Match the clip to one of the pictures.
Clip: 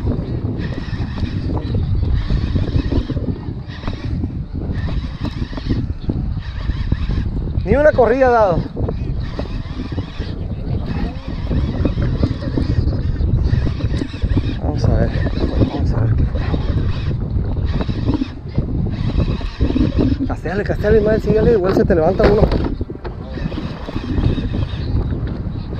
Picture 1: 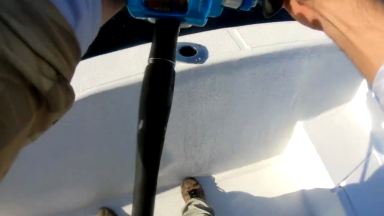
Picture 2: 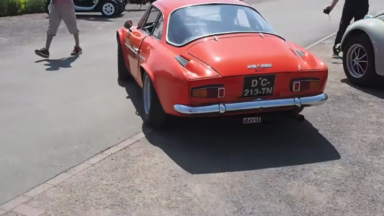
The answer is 1